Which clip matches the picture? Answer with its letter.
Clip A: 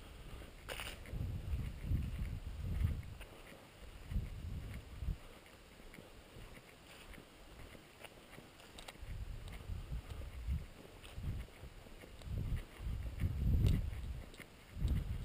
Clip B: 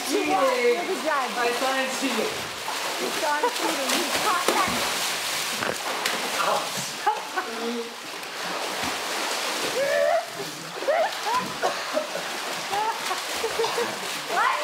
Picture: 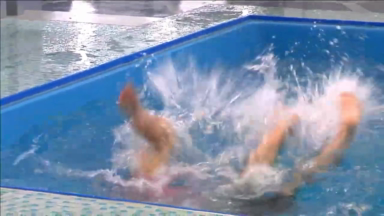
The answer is B